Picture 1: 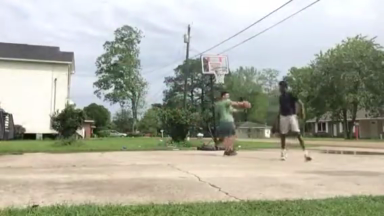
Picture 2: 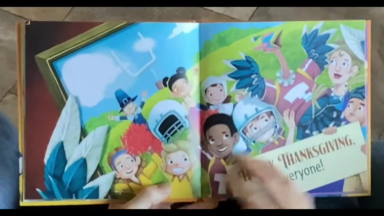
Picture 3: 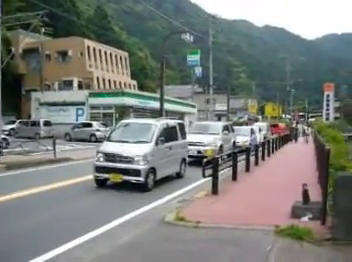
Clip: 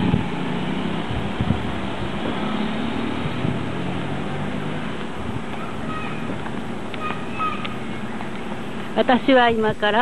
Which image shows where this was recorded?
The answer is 3